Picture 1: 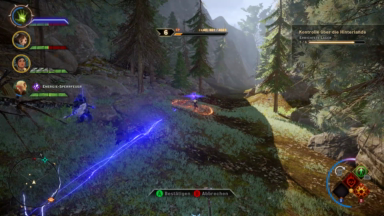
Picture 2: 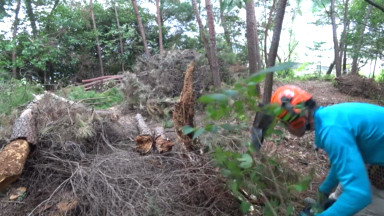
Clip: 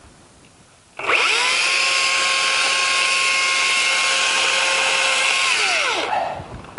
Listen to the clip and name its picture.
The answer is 2